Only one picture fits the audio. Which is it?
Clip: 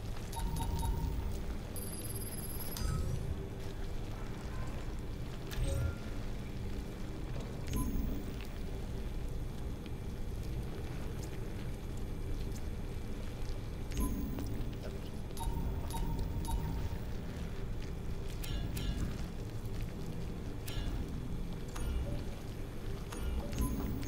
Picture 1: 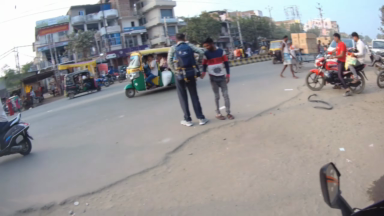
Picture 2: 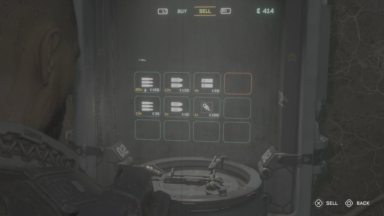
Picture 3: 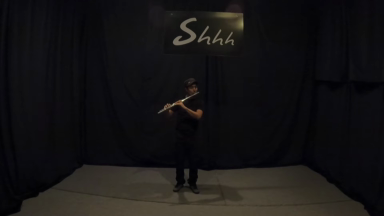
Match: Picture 2